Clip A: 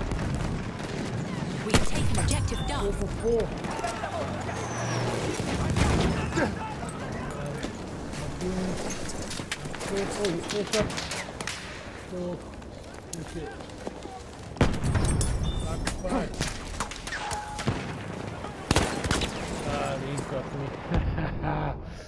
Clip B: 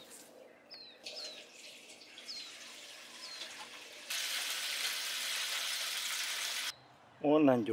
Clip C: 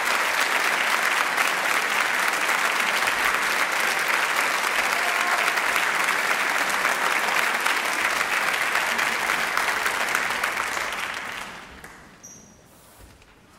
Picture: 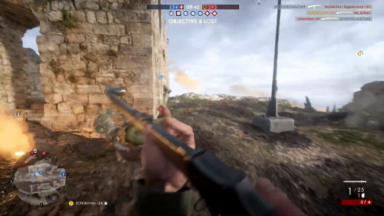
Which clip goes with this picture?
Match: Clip A